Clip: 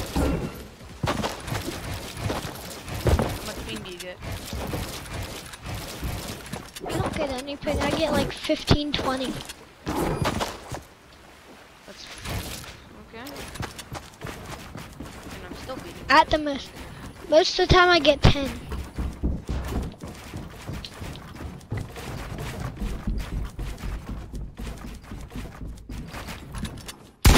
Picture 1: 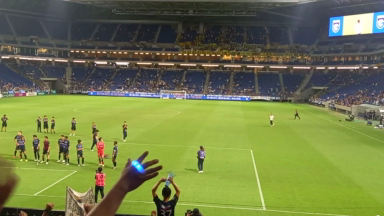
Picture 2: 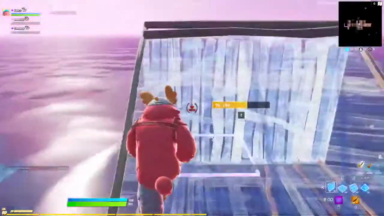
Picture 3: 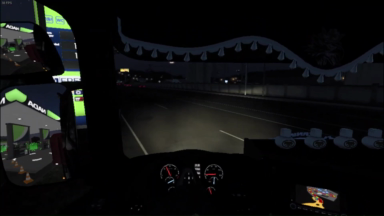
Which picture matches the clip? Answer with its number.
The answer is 2